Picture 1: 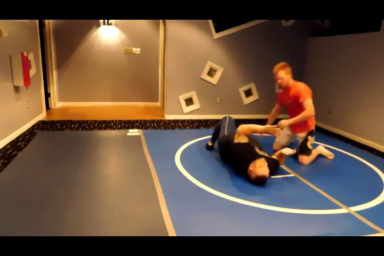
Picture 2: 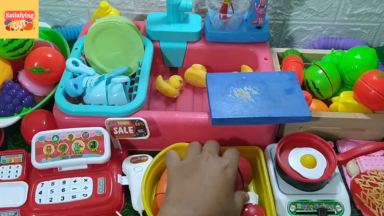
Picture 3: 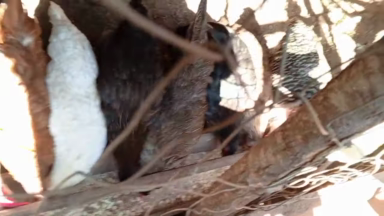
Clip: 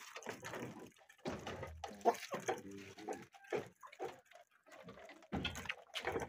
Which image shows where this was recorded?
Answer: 3